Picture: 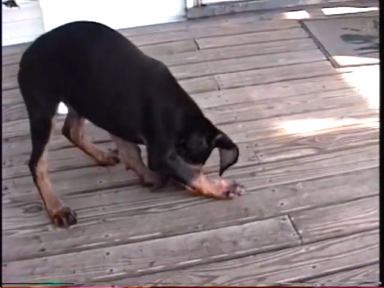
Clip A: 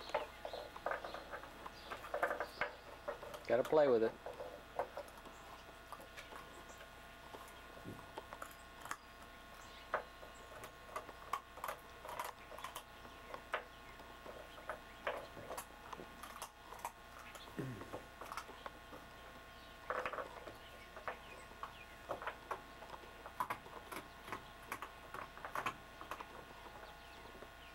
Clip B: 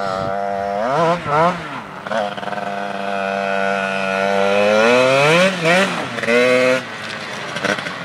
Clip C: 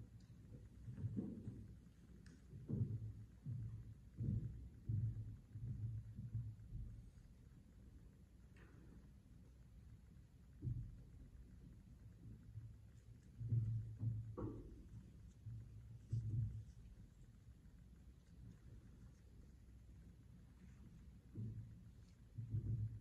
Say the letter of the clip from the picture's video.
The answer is A